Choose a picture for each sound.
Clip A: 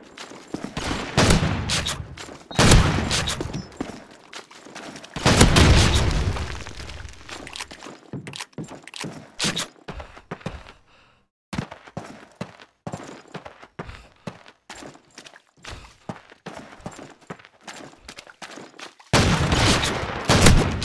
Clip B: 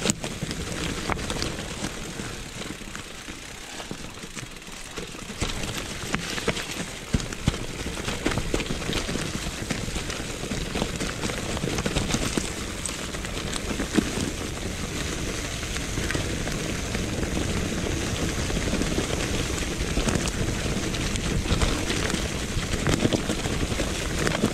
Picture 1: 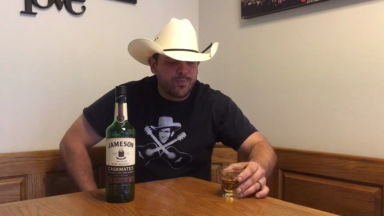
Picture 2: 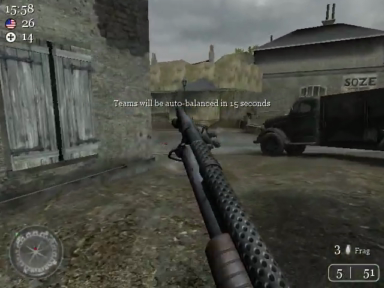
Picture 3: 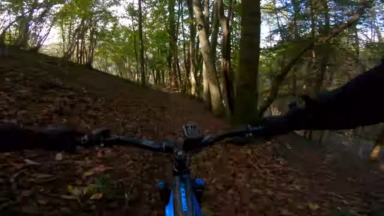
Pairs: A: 2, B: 3